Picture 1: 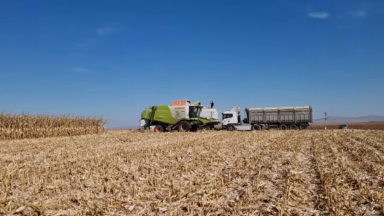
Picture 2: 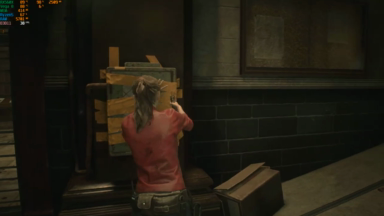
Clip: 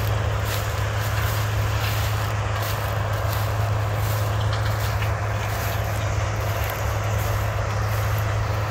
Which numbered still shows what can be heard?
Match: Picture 1